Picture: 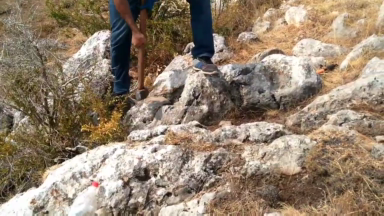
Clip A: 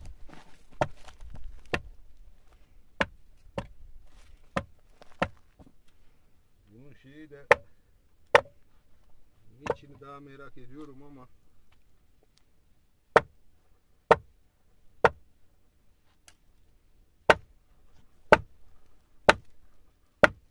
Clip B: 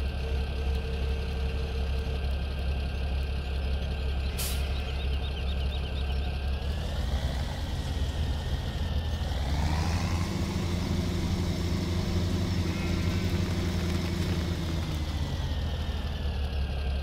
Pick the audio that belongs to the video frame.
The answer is A